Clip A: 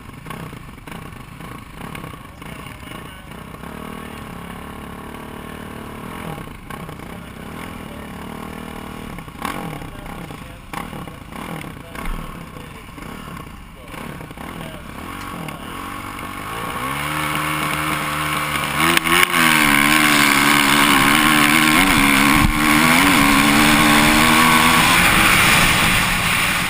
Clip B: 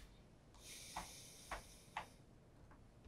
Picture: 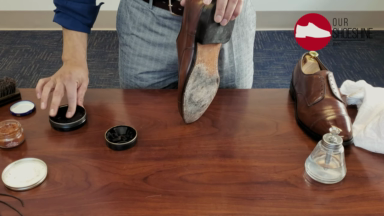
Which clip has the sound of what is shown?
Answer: B